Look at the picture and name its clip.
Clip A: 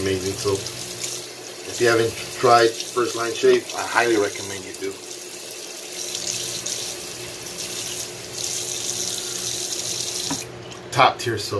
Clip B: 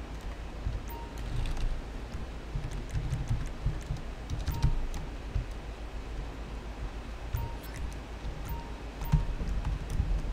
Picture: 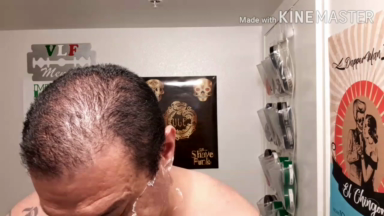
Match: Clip A